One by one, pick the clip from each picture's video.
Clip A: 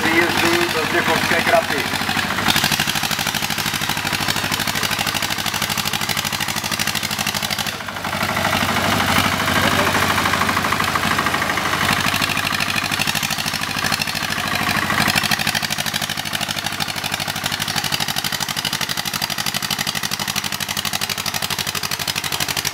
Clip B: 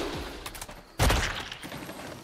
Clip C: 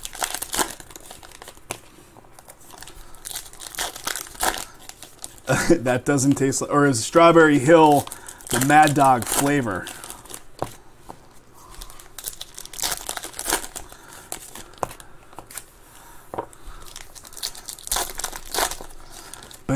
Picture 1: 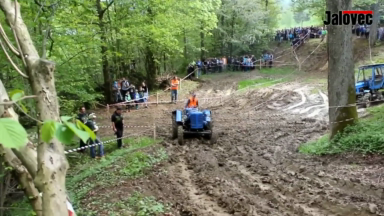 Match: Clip A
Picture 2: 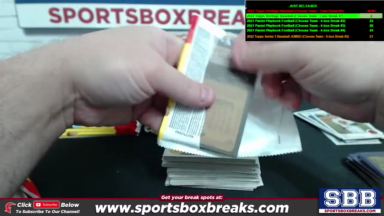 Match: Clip C